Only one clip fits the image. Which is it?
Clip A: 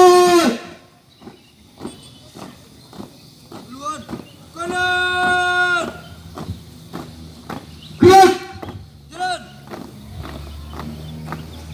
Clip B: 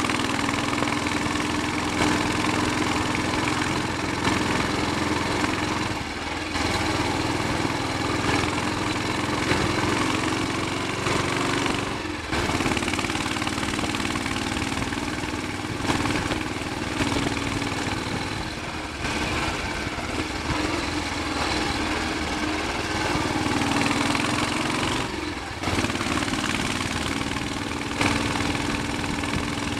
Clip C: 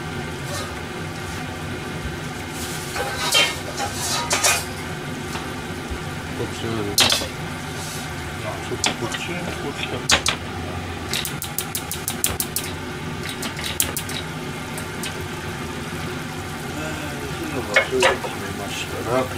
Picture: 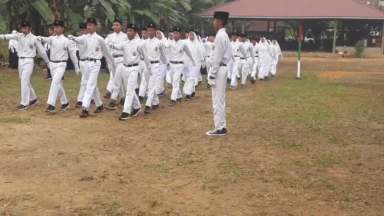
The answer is A